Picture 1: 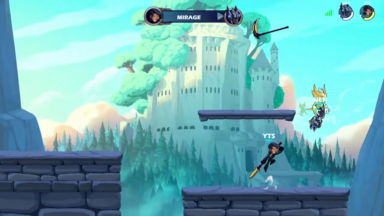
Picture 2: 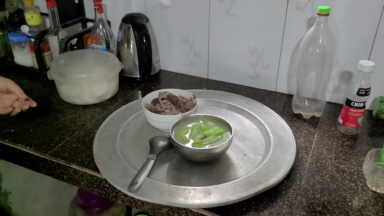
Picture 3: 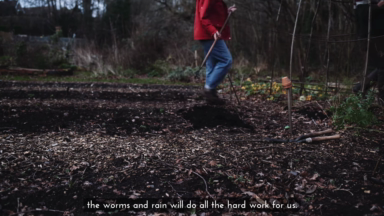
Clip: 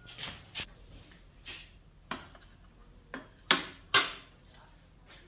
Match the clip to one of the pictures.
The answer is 2